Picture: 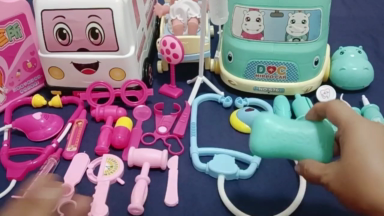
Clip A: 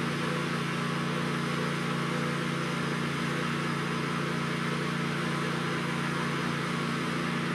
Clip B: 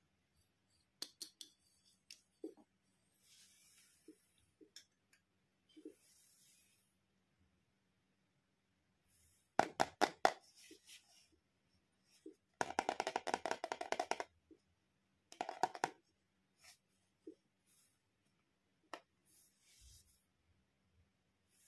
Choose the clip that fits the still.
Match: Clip B